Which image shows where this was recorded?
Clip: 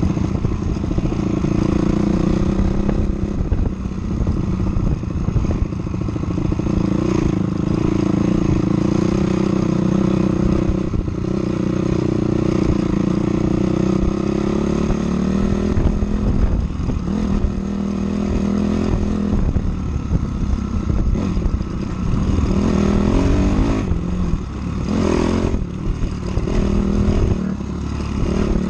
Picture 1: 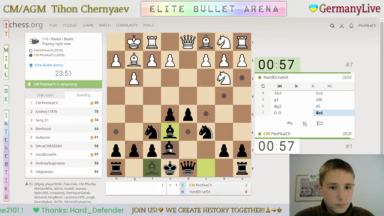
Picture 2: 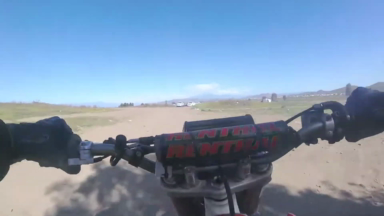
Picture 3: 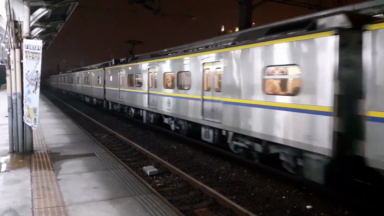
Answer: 2